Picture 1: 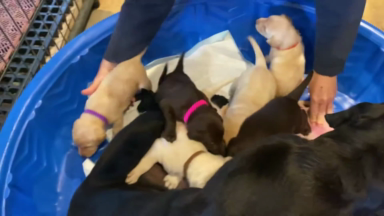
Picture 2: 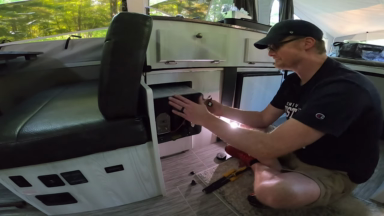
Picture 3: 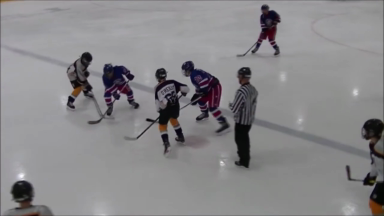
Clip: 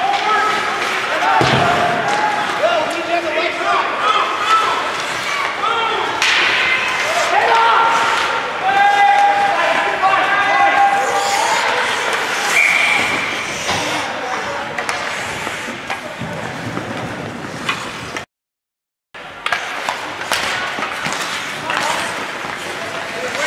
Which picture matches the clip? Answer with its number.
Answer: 3